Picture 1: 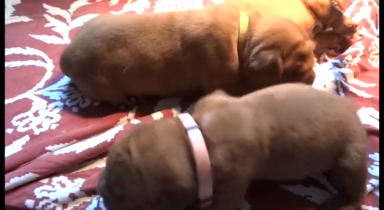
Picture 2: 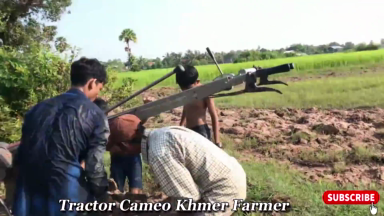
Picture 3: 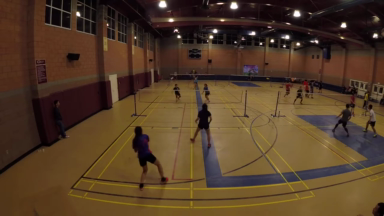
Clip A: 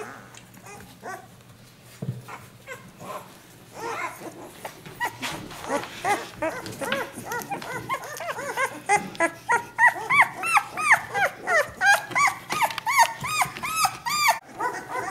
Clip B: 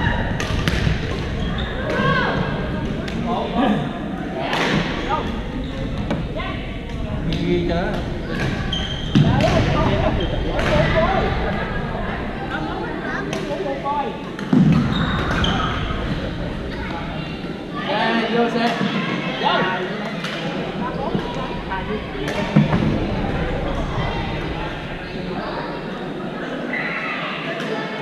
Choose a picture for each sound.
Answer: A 1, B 3